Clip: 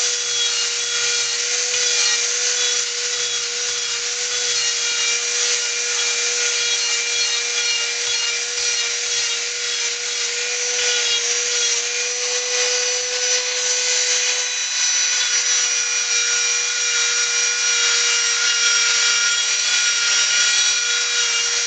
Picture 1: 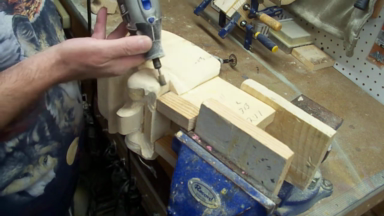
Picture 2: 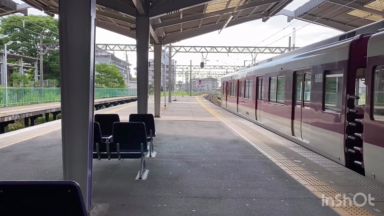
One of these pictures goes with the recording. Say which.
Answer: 1